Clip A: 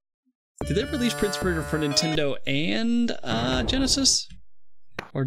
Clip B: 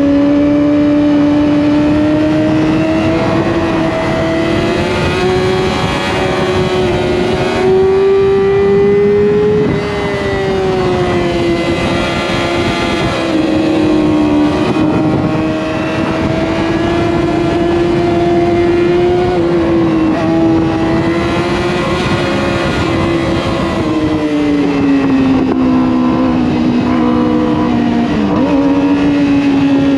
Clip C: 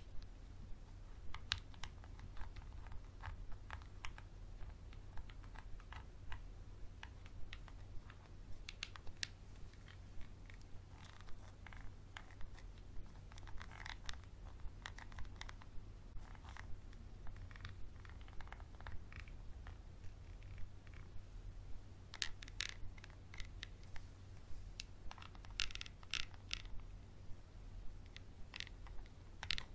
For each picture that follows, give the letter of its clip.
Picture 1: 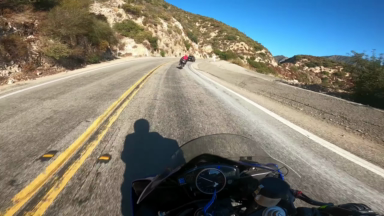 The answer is B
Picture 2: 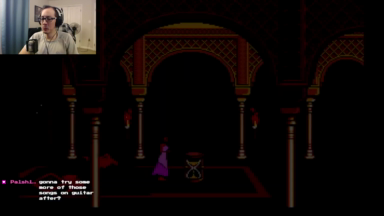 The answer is A